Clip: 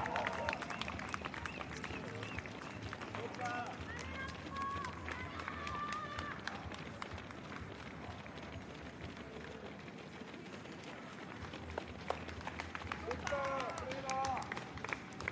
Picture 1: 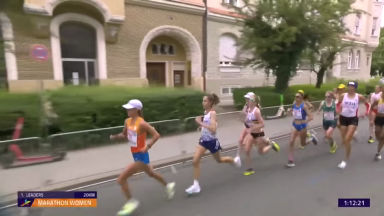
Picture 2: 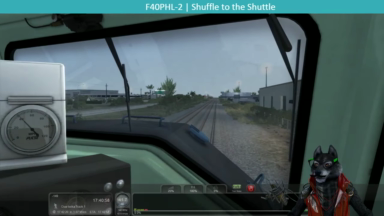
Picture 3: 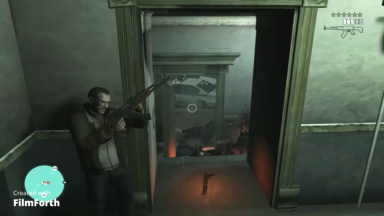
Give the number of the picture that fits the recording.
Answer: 1